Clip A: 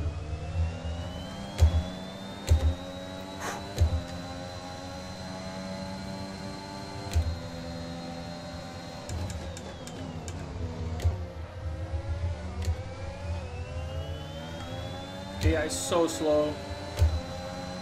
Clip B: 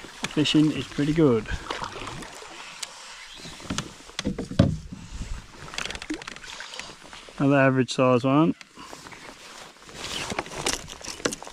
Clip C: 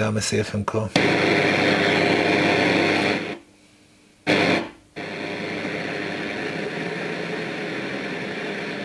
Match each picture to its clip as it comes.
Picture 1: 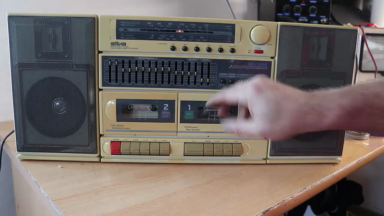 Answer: C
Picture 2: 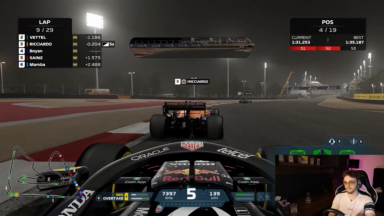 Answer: A